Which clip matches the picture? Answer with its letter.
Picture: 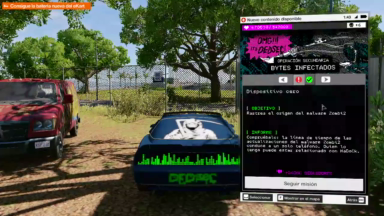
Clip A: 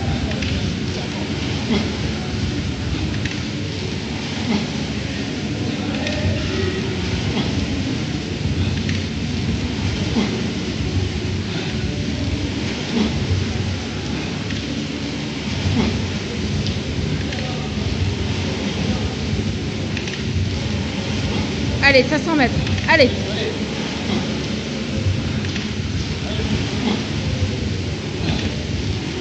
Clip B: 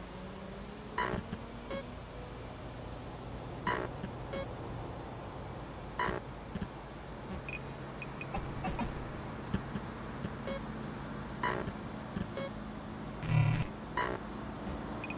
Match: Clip B